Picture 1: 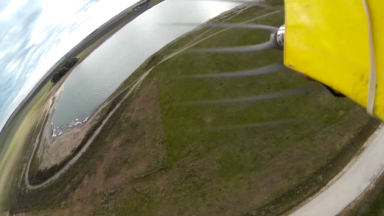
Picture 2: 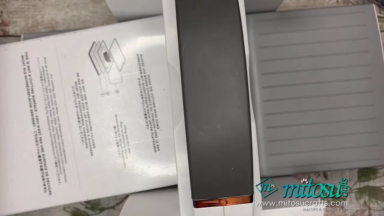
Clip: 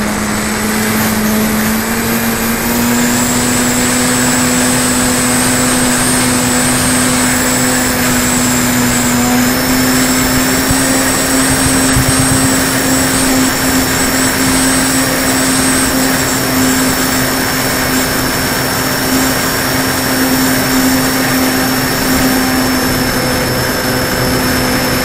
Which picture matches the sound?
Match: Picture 1